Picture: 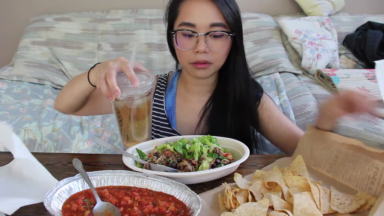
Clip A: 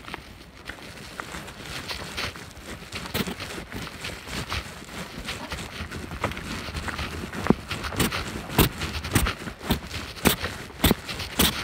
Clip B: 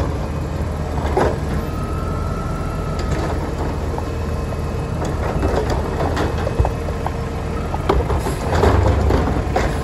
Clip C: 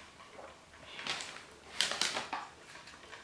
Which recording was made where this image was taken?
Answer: C